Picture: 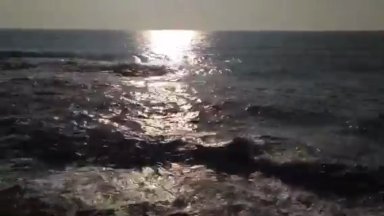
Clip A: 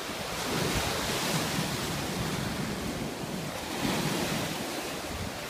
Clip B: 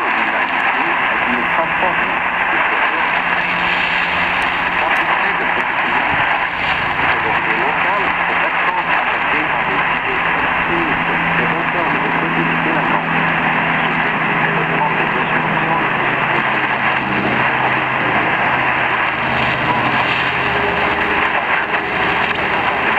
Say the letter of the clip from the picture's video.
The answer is A